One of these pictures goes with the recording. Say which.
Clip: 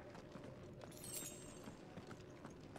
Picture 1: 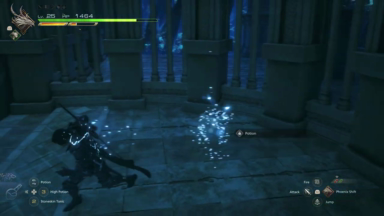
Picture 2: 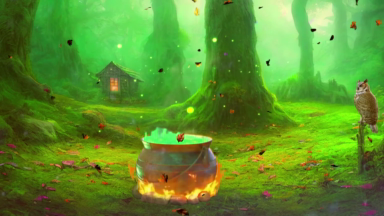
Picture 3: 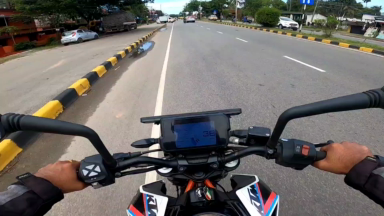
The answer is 1